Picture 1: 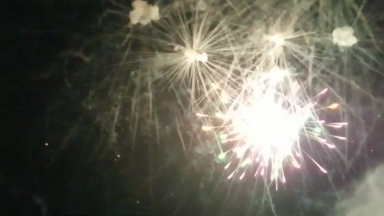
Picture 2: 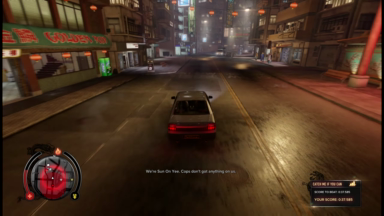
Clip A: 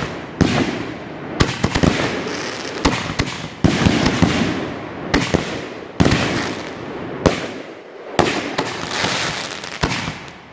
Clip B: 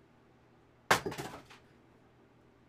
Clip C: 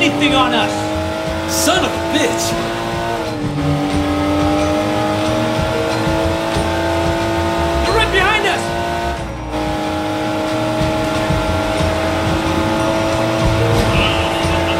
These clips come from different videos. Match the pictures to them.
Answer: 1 A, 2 C